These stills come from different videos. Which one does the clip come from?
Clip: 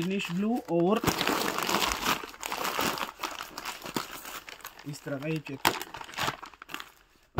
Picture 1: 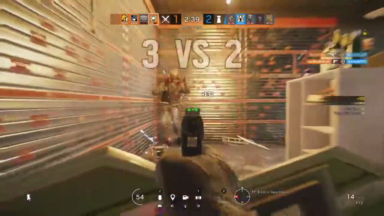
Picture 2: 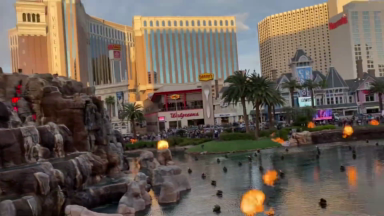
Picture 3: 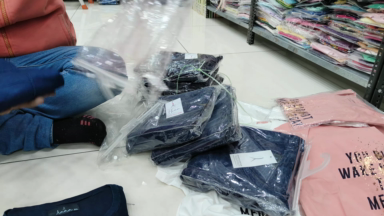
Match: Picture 3